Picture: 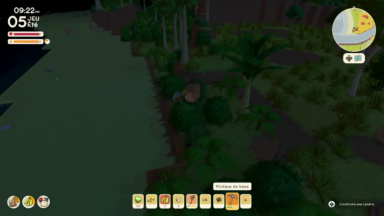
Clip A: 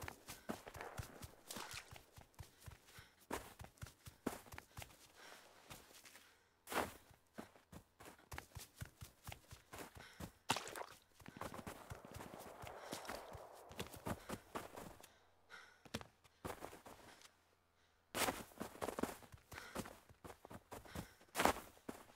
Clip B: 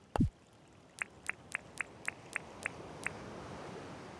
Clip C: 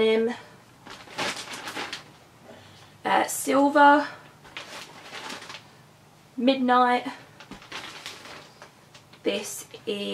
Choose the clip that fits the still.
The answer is B